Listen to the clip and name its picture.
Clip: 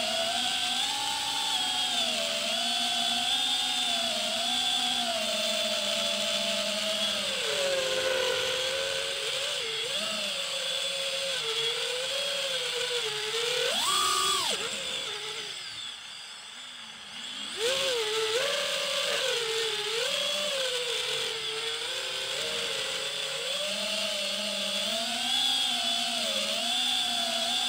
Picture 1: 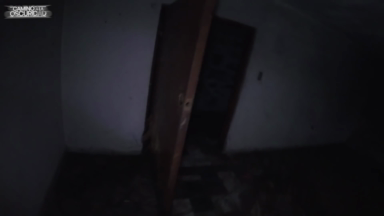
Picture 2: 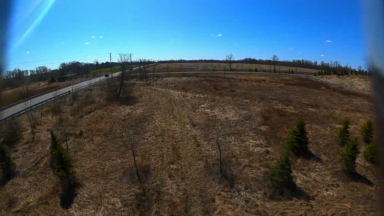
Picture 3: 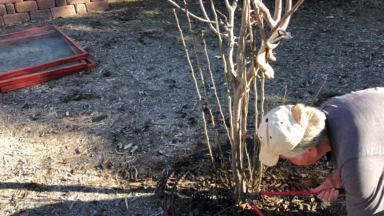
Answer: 2